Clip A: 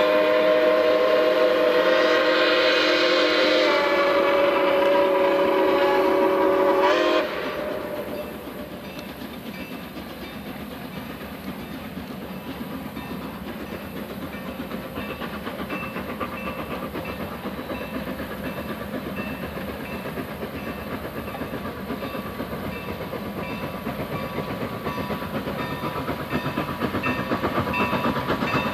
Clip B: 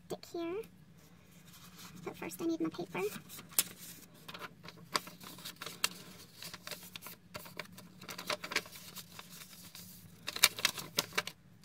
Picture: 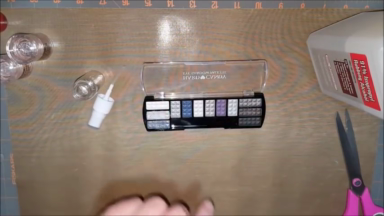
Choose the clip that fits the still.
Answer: B